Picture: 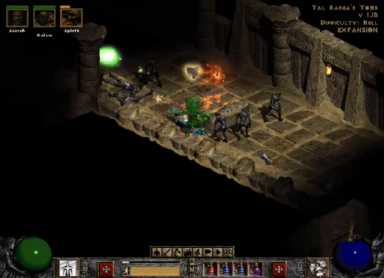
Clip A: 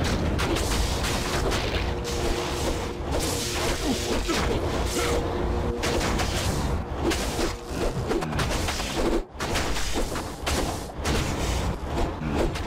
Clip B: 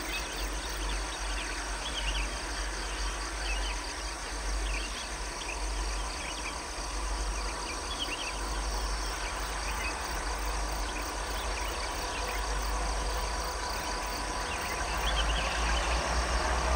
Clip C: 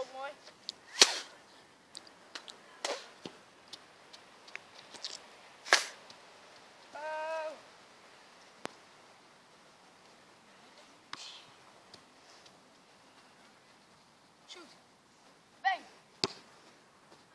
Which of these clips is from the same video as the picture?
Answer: A